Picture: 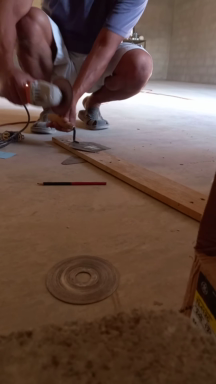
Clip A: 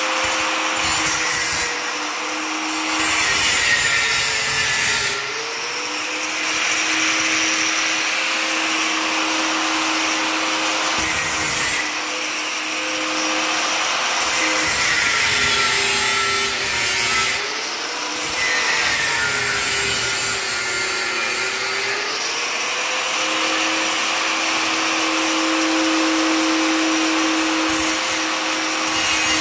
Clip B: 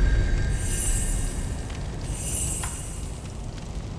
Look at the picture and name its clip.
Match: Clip A